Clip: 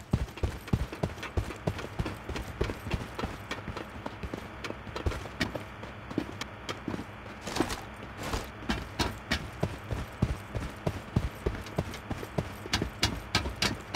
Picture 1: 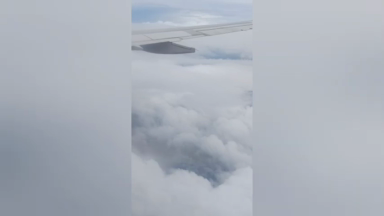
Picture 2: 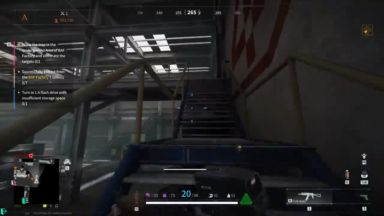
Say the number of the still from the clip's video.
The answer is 2